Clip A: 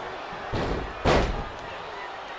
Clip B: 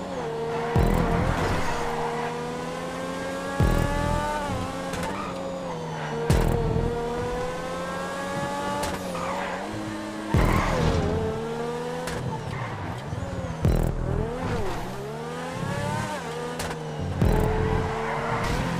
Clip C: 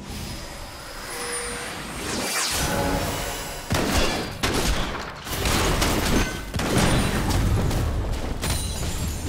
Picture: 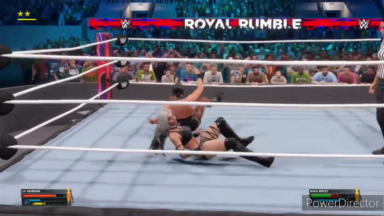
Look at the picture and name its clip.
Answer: A